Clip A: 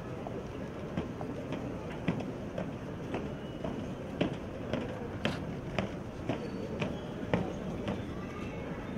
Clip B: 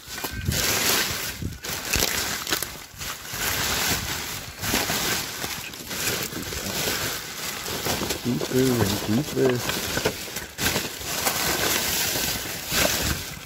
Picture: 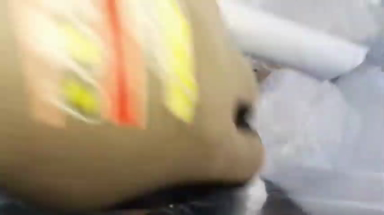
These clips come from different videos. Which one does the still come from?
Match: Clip B